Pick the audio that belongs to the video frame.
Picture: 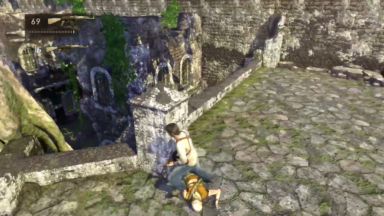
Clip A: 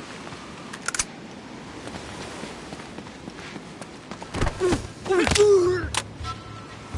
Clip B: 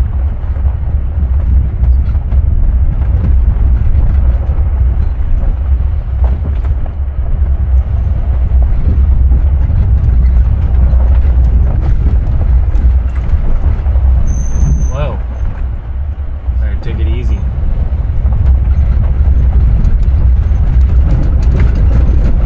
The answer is A